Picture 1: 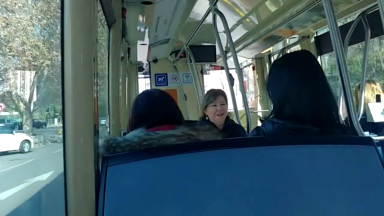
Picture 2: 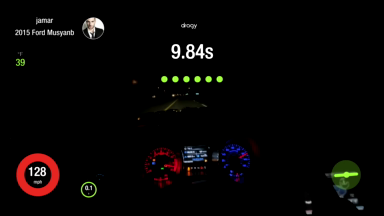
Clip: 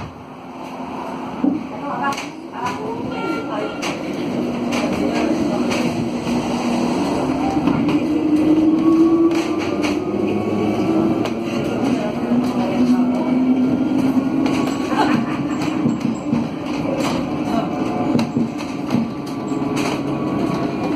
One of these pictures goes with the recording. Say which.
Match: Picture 1